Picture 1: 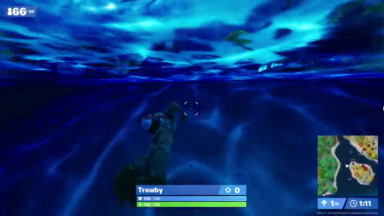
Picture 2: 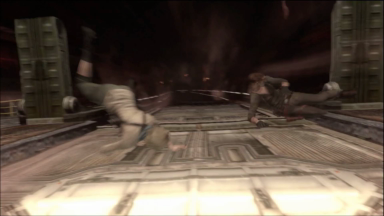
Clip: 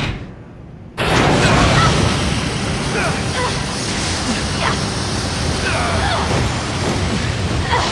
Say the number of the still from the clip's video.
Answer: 2